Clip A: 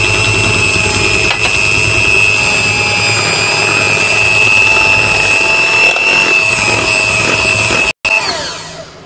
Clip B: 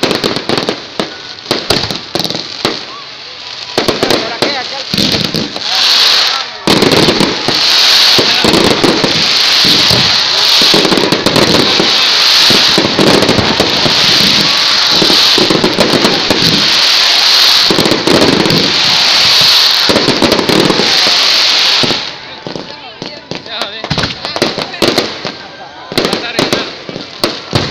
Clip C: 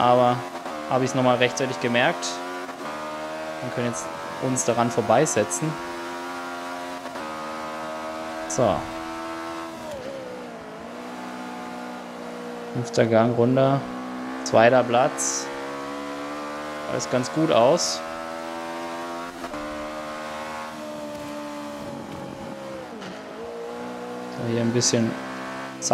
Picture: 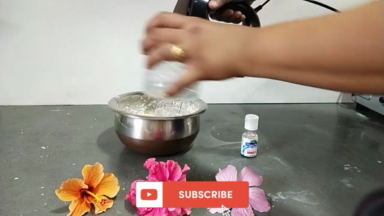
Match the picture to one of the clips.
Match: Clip A